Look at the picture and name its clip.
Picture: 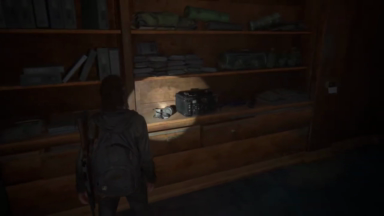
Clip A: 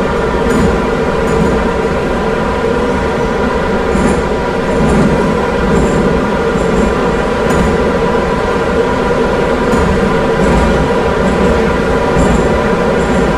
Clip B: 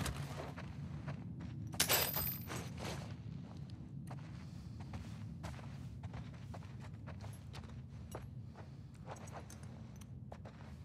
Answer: B